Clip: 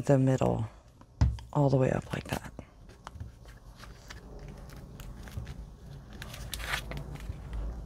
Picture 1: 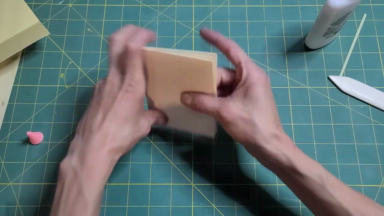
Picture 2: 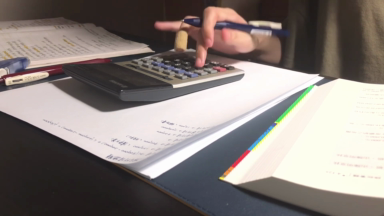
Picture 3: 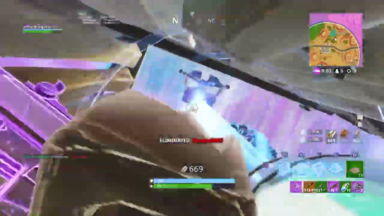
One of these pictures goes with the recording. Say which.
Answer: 1